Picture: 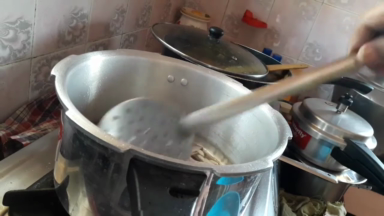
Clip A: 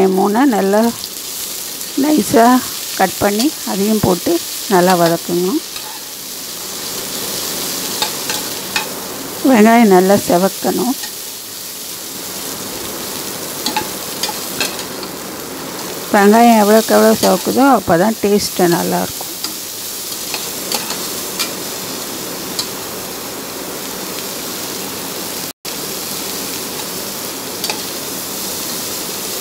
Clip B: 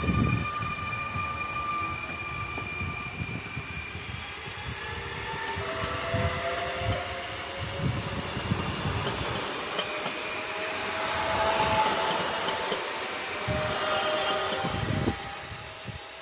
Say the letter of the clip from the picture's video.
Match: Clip A